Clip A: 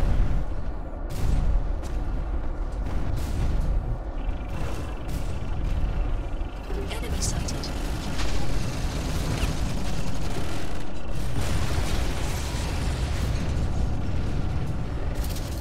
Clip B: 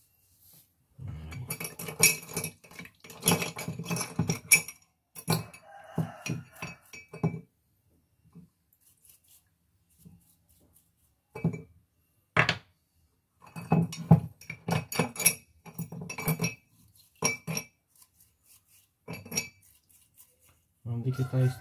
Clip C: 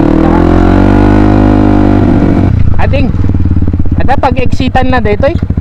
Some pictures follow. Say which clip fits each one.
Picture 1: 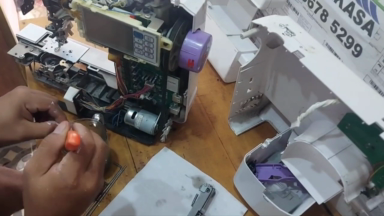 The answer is B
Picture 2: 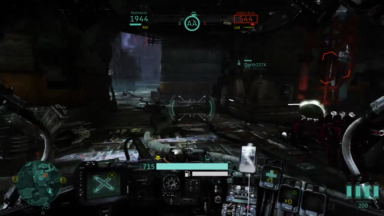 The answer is A